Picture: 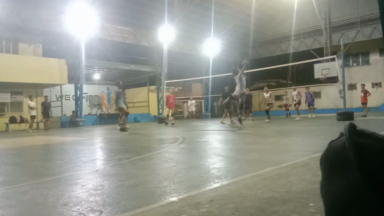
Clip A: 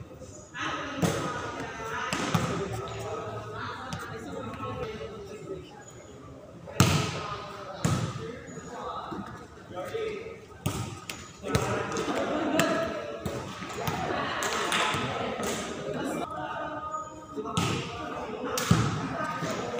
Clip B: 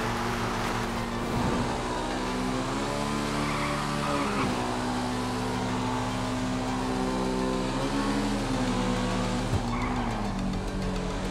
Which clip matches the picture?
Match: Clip A